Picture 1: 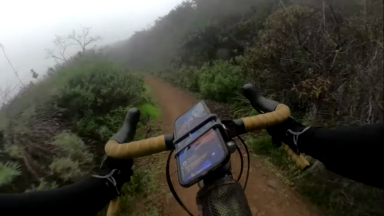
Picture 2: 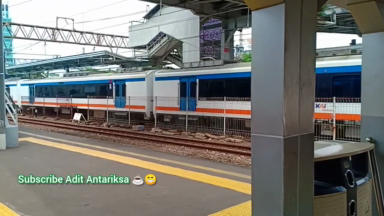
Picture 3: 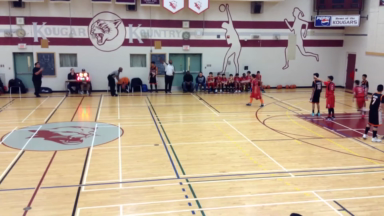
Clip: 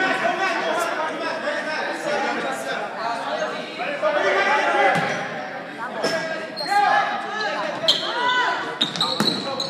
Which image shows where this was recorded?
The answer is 3